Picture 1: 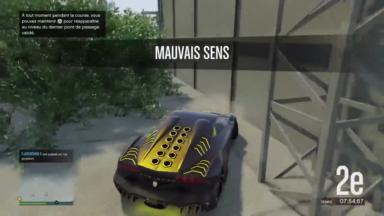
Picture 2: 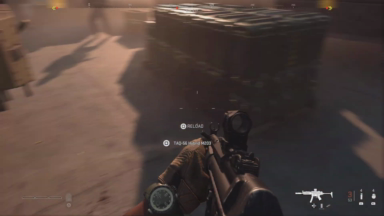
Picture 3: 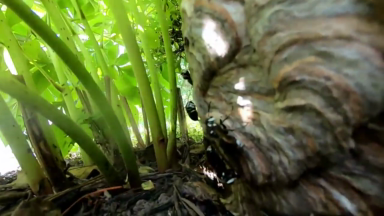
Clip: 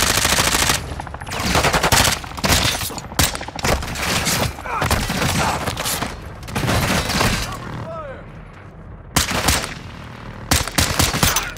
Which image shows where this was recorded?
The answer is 2